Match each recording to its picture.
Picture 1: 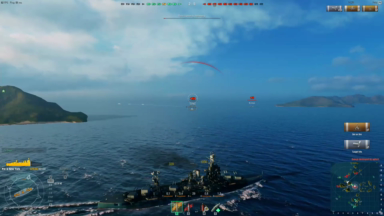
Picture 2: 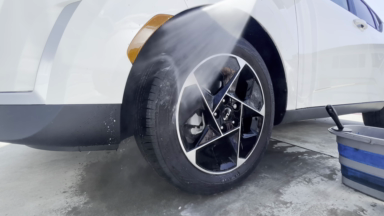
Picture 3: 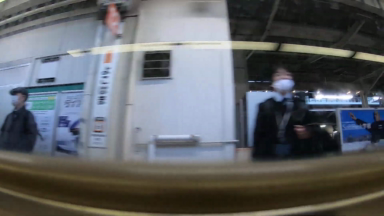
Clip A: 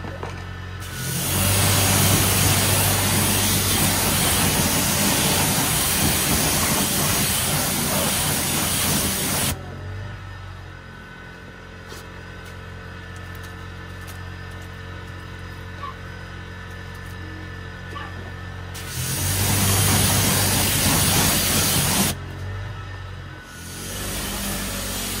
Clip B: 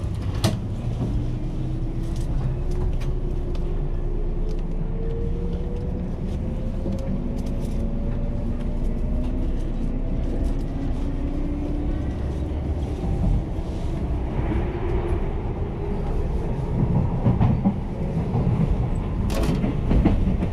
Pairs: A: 2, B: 3